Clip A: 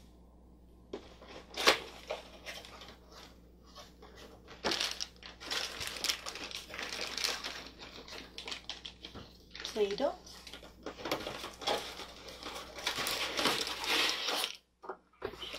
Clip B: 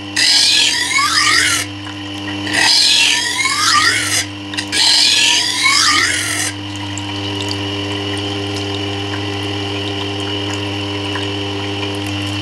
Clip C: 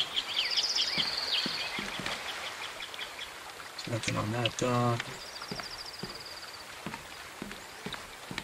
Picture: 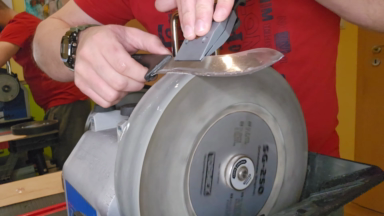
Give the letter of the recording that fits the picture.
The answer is B